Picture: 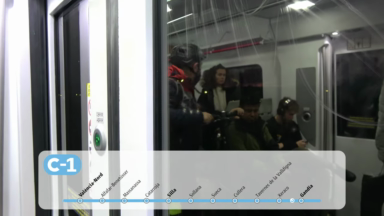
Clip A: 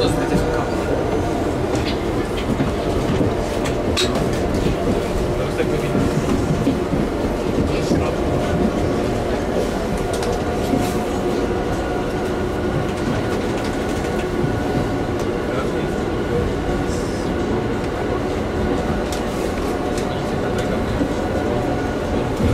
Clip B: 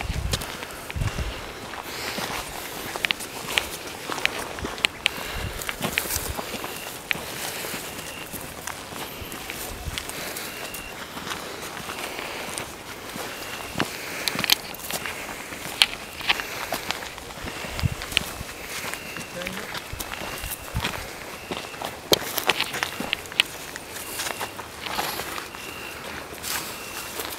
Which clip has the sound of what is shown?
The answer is A